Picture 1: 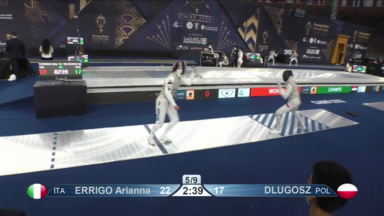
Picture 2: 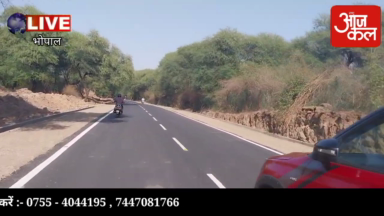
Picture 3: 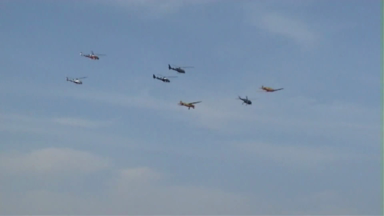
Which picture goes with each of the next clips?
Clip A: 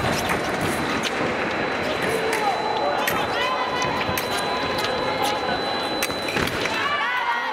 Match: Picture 1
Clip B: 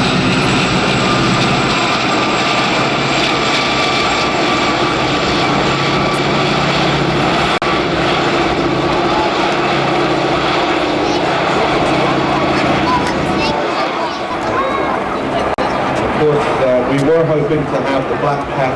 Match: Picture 3